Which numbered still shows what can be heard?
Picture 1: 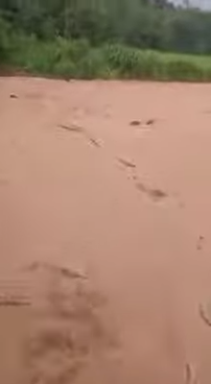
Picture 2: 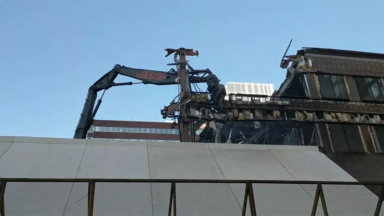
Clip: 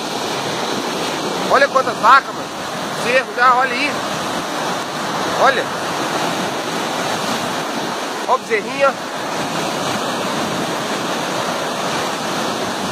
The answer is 1